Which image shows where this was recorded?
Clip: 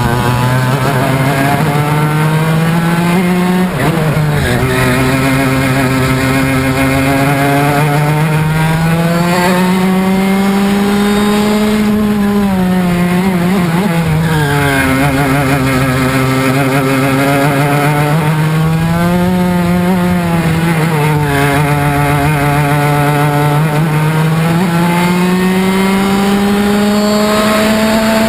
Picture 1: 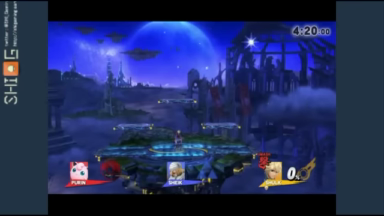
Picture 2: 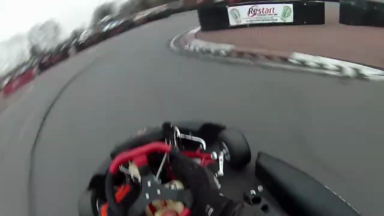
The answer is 2